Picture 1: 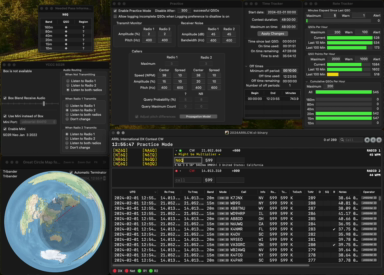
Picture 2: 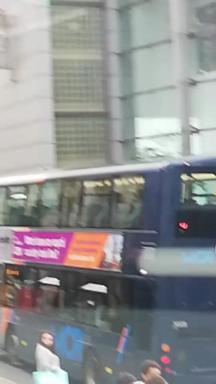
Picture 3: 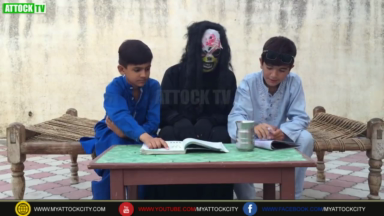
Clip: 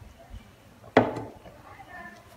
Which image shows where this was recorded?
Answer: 3